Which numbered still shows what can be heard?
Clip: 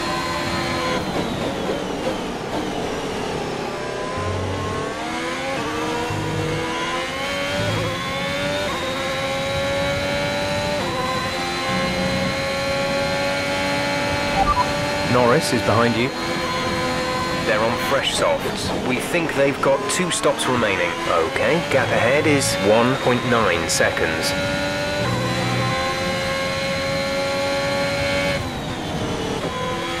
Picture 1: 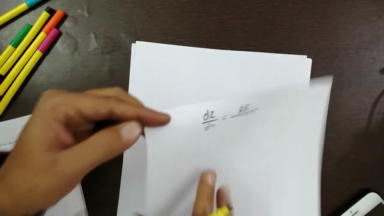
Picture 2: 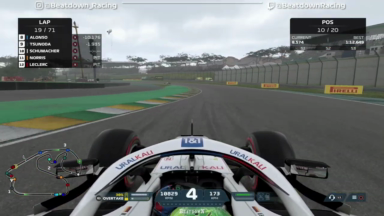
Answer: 2